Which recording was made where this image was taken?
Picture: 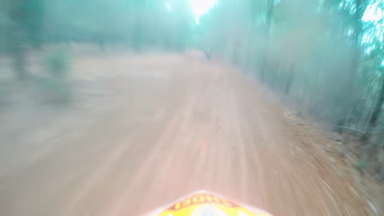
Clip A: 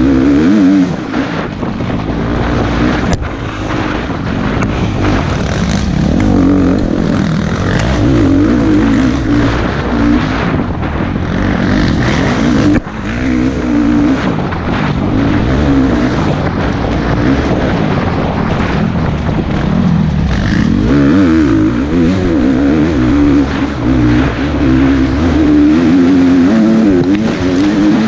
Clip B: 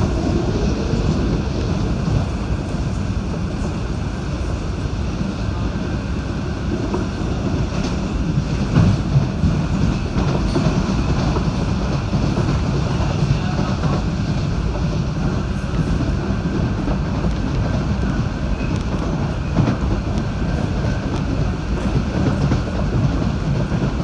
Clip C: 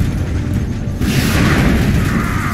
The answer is A